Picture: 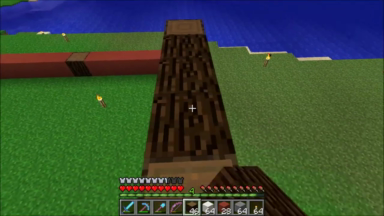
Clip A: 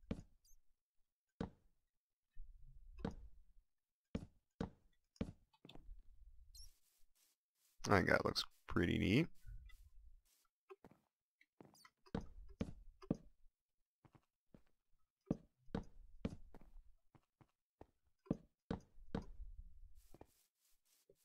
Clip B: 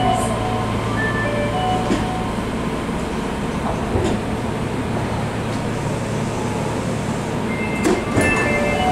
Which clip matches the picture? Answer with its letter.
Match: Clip A